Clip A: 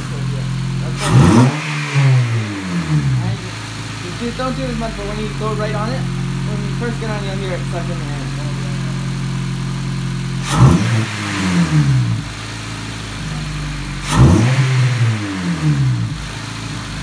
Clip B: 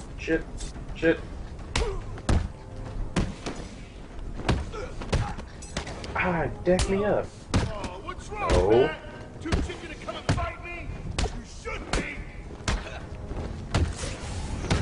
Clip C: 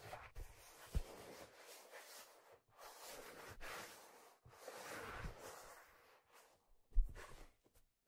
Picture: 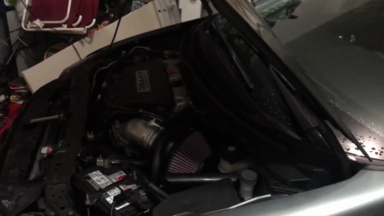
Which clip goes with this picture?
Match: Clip A